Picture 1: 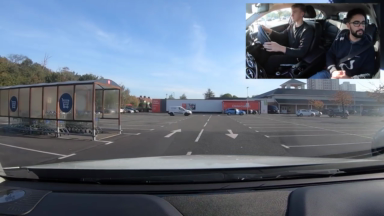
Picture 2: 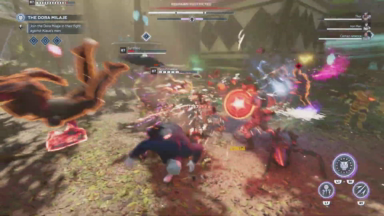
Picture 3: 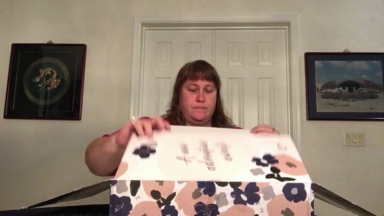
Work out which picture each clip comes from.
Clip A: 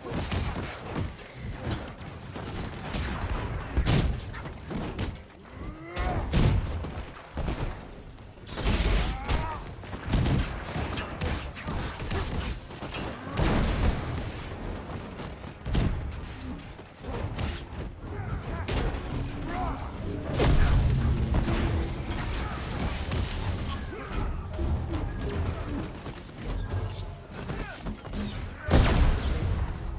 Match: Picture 2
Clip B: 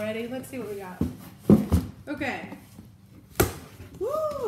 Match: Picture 3